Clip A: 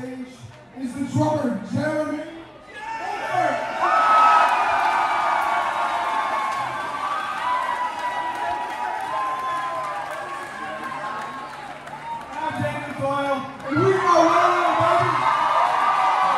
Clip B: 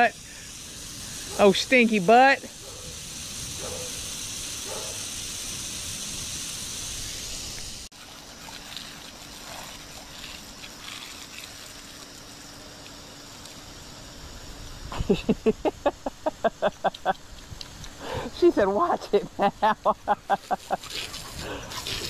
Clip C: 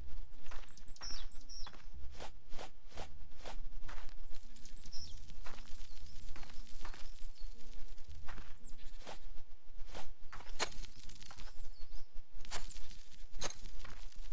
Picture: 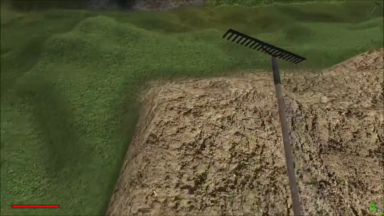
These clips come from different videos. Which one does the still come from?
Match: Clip C